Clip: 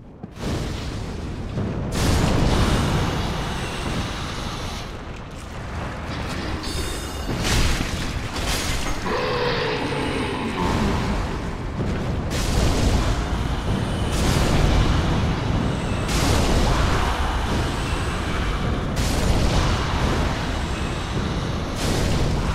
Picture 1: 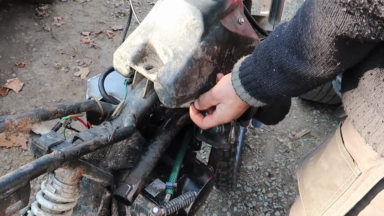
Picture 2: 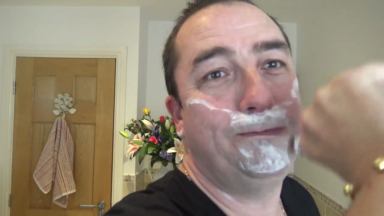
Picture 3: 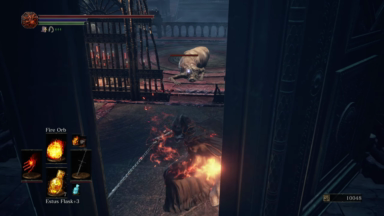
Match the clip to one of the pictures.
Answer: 3